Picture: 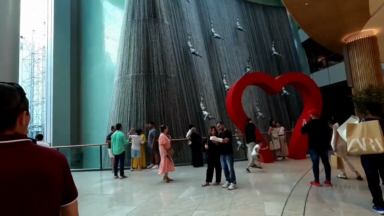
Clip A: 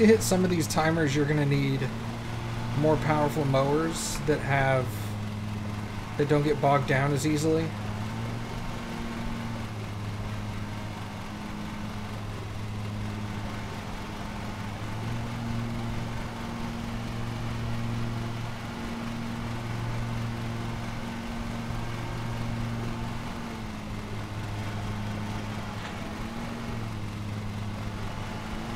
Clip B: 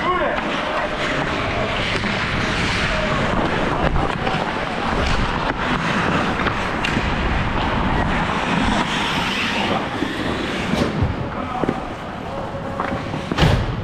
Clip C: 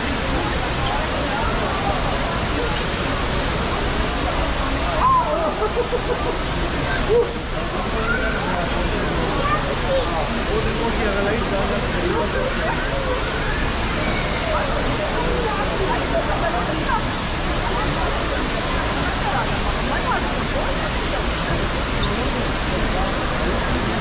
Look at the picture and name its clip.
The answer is C